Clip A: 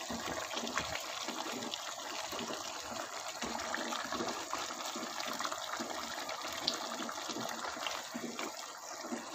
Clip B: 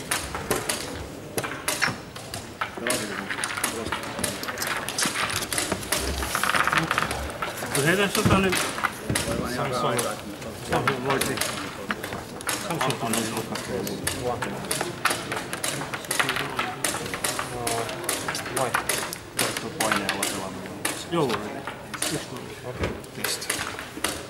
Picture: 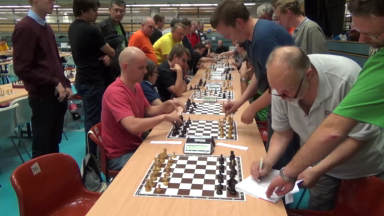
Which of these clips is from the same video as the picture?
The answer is B